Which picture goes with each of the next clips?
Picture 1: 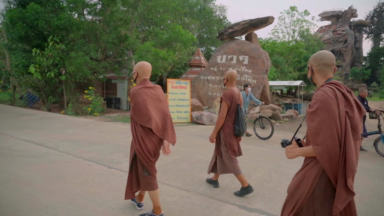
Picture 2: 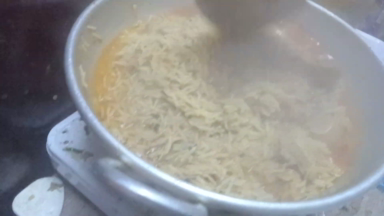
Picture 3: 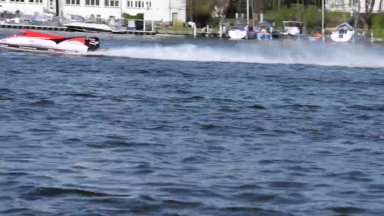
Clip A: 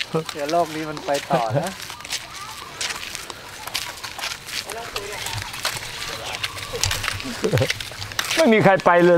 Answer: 1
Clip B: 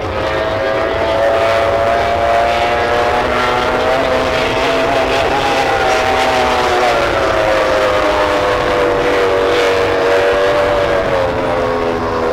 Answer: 3